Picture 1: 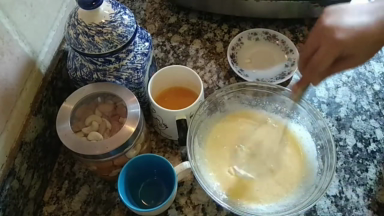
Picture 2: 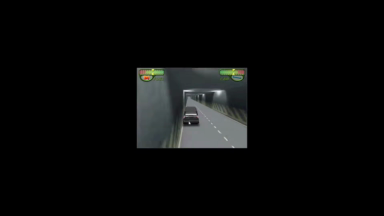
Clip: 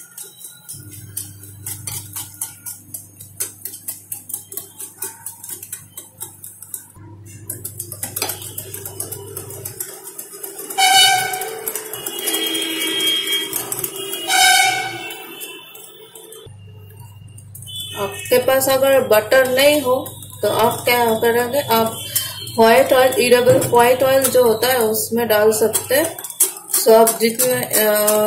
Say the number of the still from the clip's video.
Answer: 1